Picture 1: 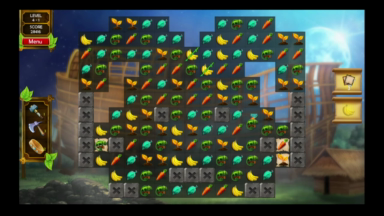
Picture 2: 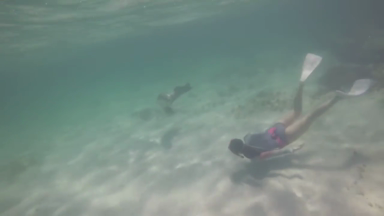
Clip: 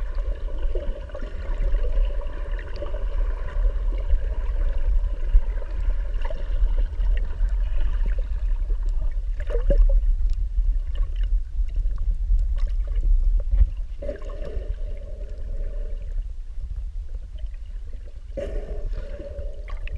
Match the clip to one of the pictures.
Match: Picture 2